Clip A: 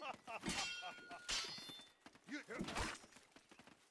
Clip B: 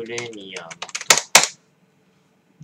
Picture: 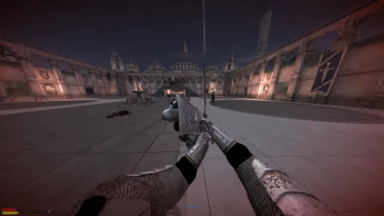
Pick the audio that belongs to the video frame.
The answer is A